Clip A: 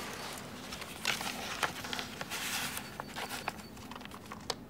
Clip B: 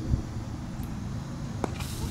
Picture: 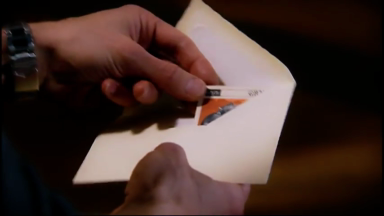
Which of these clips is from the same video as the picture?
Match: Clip A